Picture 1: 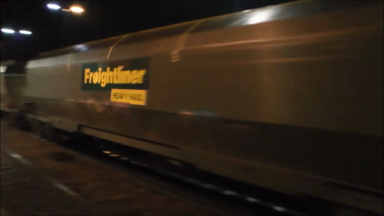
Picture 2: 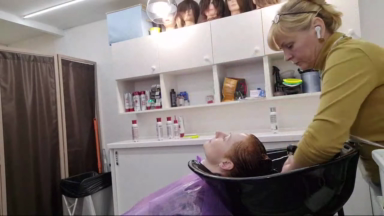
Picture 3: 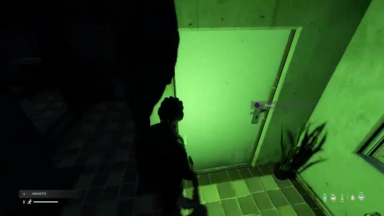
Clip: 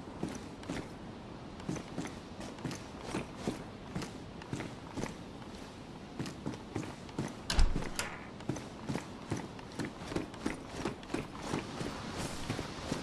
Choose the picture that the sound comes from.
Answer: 3